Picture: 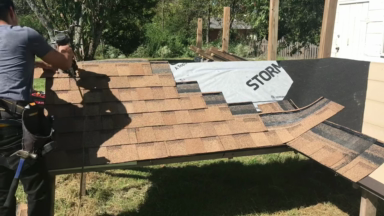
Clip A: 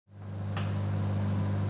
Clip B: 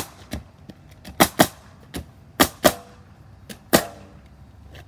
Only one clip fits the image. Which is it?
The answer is B